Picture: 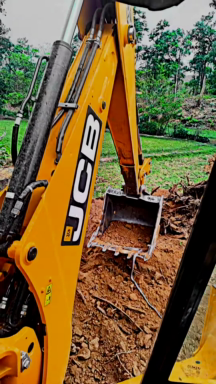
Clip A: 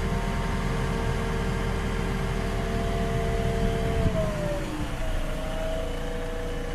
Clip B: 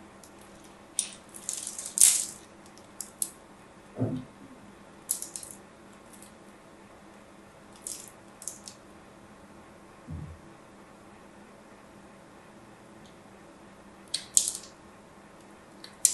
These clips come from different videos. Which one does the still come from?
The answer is A